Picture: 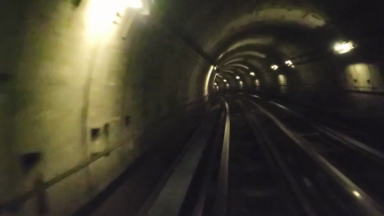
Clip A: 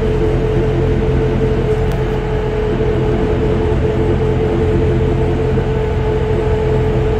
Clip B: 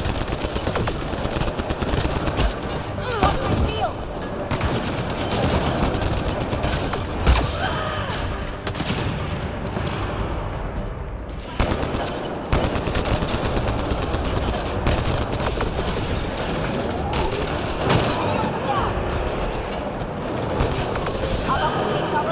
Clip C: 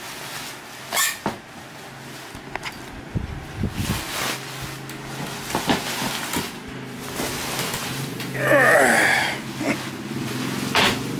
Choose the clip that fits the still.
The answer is A